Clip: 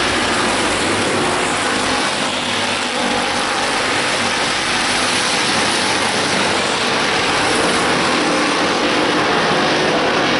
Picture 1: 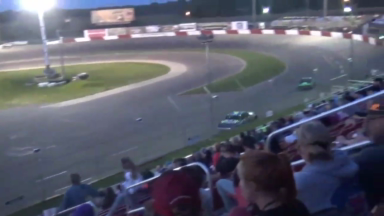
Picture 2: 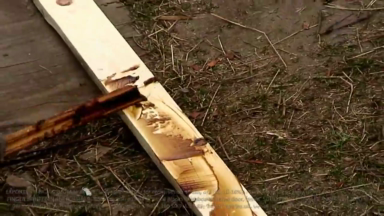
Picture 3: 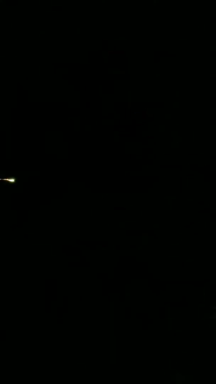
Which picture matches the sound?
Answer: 1